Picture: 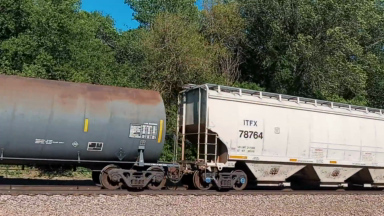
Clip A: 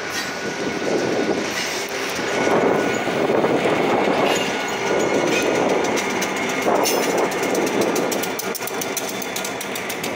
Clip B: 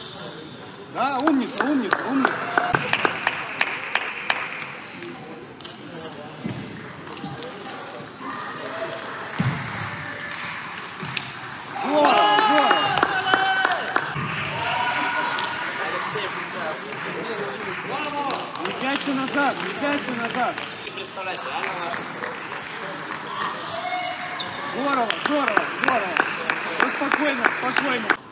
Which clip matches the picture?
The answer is A